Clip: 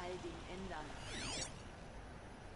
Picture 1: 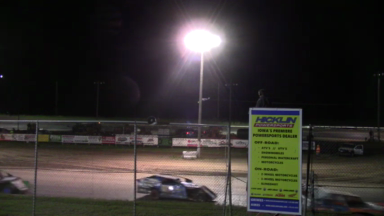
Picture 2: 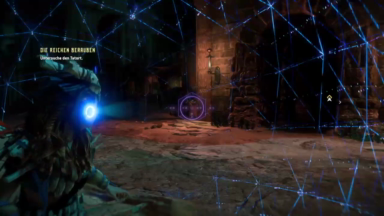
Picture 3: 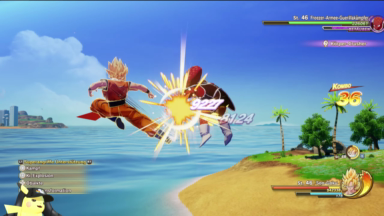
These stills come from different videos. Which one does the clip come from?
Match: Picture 2